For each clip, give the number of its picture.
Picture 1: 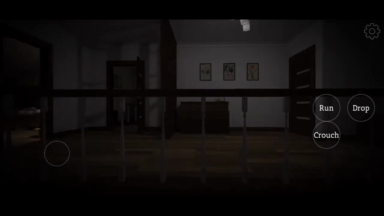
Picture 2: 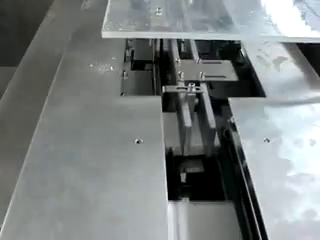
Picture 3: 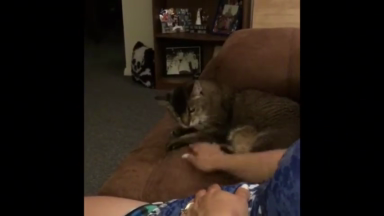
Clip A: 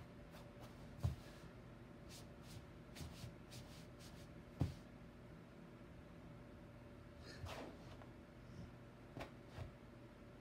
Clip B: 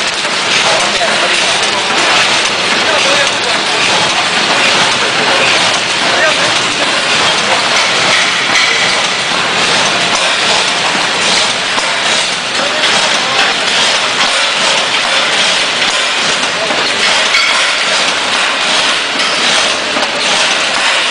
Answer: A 3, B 2